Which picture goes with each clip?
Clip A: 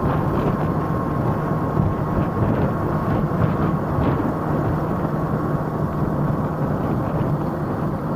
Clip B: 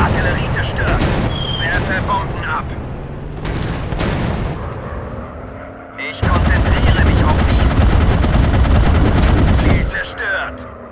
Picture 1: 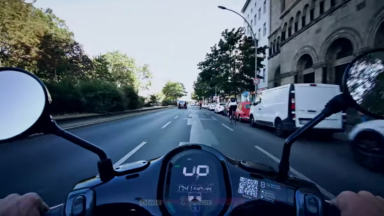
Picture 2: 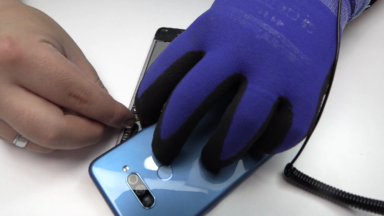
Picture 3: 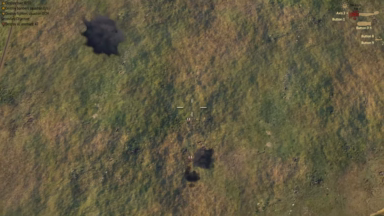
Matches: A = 1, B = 3